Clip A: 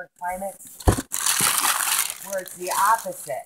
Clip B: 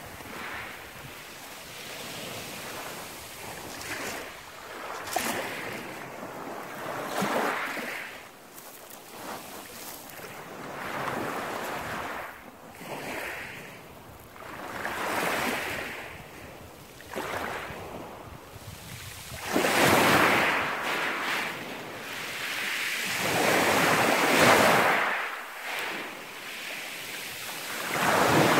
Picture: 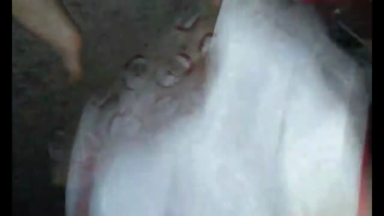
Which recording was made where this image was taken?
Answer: A